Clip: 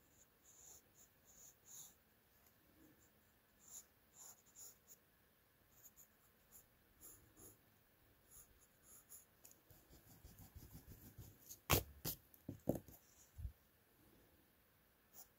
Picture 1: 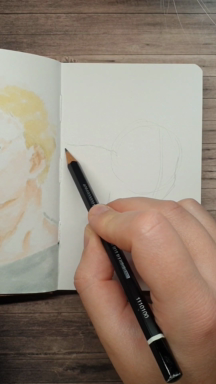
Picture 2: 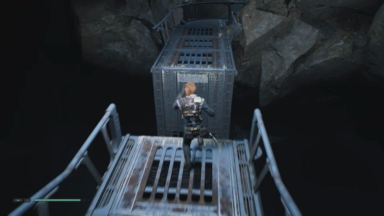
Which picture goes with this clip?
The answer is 1